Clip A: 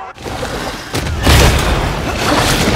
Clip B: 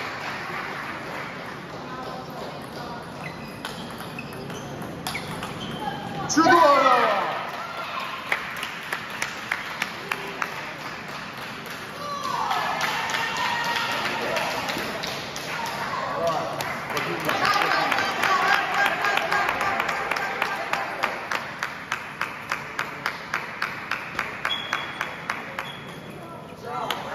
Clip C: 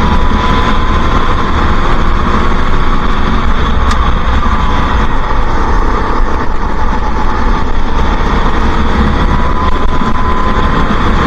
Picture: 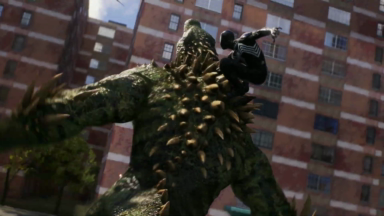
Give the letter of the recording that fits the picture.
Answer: A